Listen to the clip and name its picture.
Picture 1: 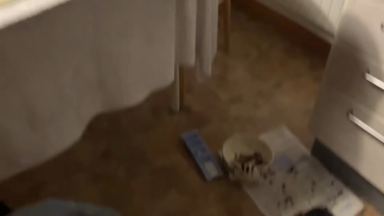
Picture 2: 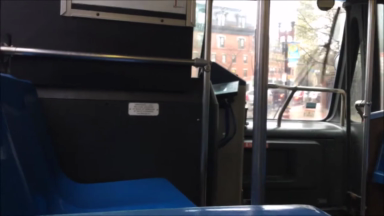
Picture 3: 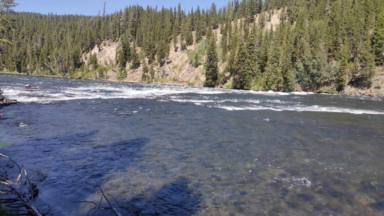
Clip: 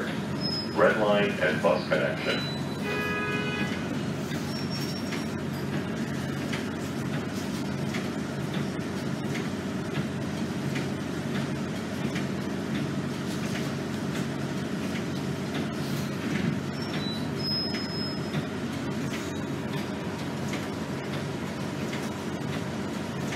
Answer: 2